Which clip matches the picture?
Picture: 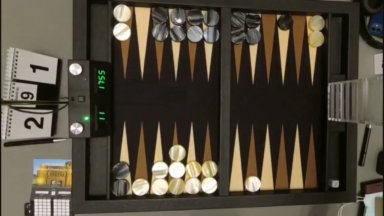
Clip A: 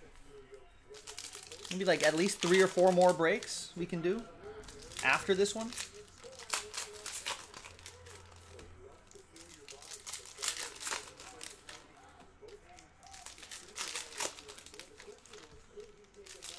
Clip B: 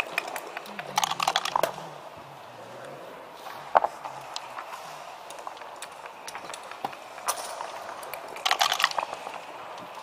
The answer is B